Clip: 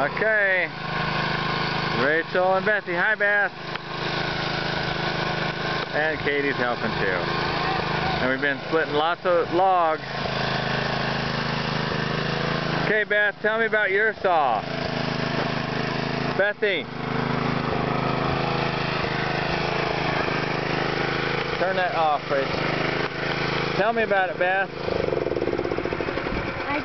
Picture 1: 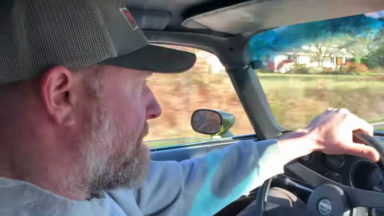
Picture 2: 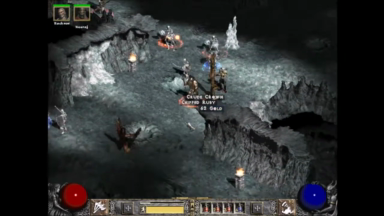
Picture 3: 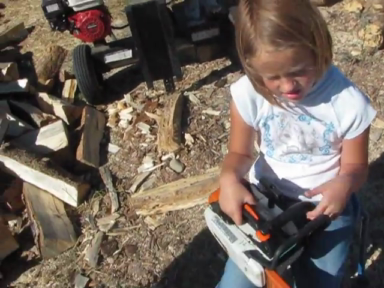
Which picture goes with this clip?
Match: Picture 3